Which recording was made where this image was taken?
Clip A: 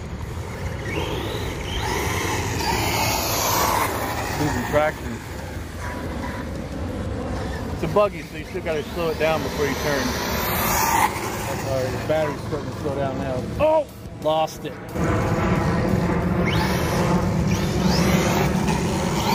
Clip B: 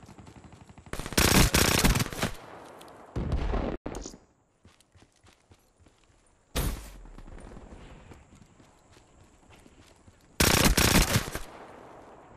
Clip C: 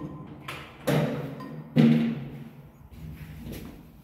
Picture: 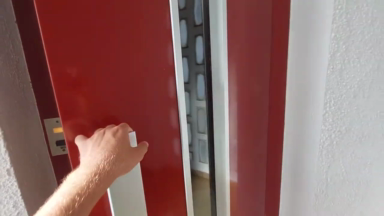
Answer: C